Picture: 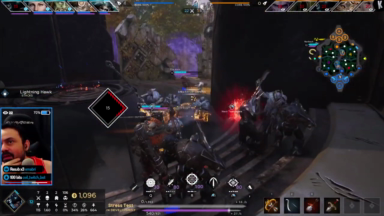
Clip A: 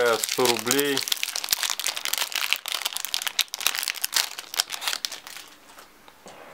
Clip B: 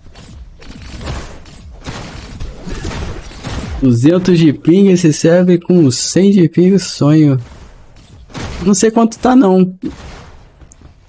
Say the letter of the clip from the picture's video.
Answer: B